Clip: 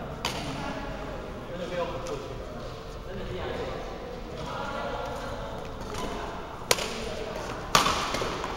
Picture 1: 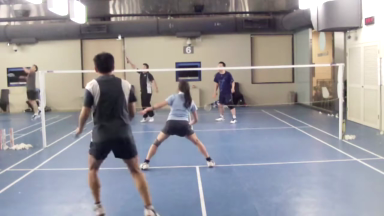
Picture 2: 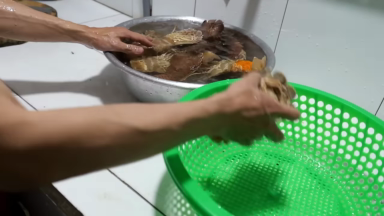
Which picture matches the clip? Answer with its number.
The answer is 1